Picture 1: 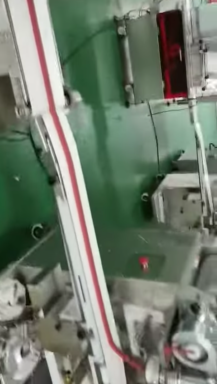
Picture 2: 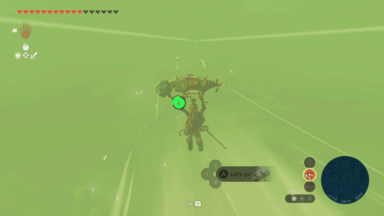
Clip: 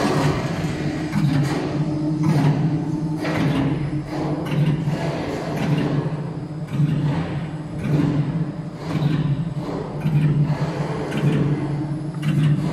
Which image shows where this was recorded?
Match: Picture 1